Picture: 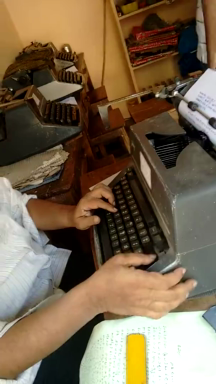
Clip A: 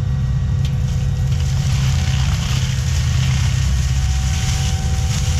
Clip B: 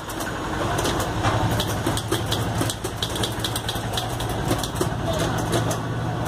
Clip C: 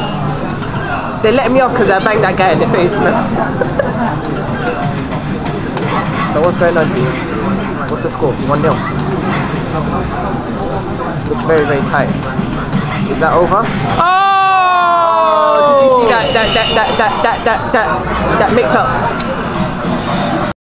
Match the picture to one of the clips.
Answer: B